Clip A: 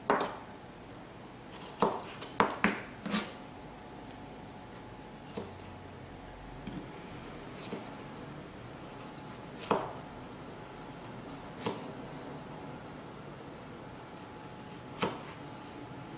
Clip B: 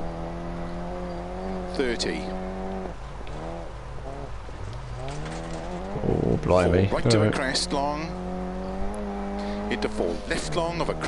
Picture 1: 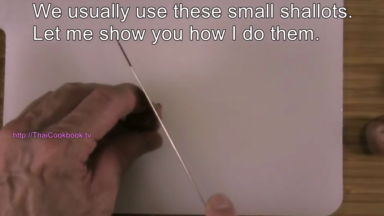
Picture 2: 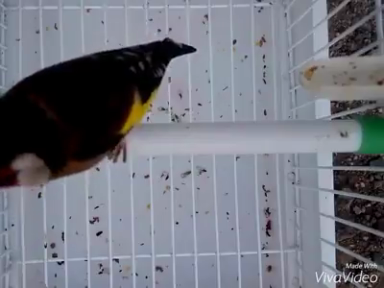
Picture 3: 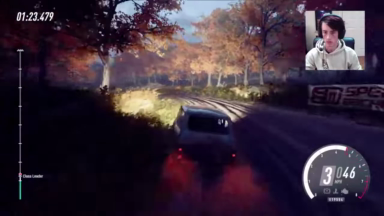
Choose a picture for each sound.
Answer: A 1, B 3